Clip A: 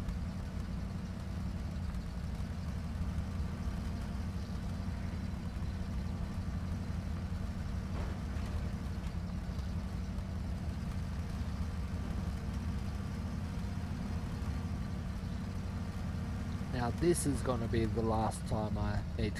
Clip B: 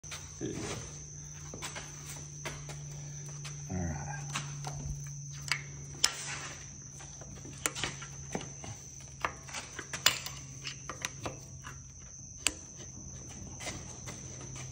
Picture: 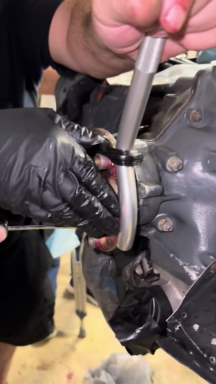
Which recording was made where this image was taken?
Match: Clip B